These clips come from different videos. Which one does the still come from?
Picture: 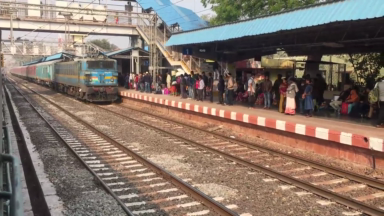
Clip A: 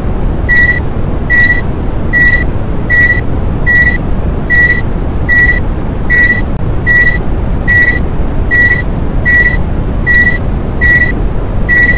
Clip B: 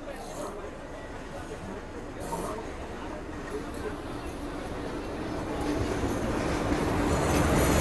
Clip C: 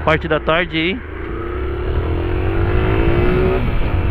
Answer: B